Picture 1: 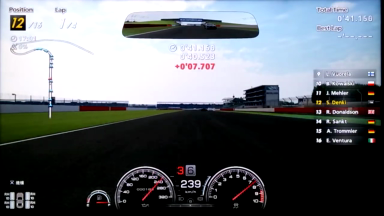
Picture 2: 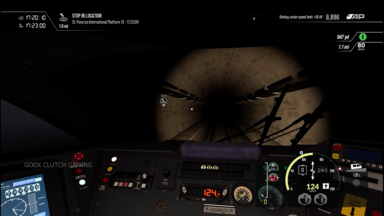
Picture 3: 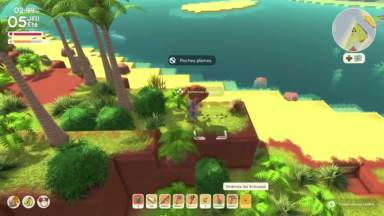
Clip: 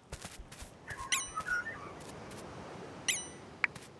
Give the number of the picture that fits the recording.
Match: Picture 3